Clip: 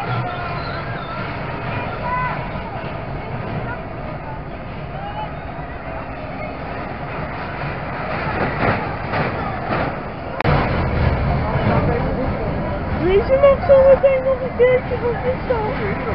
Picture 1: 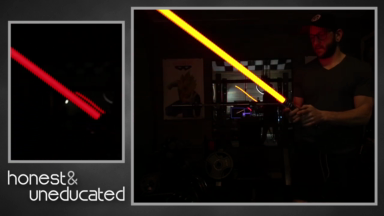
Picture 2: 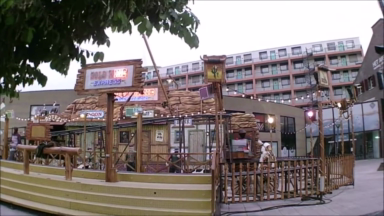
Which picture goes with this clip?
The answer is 2